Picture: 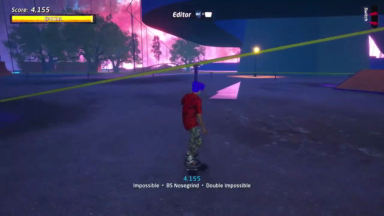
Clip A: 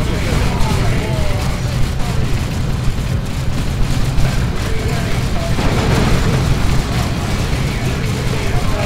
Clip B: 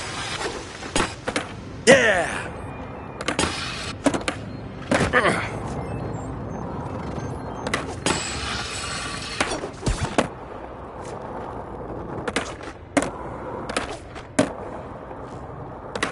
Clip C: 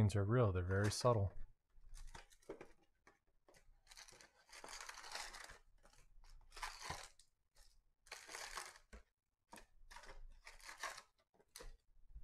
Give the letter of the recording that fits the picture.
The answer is B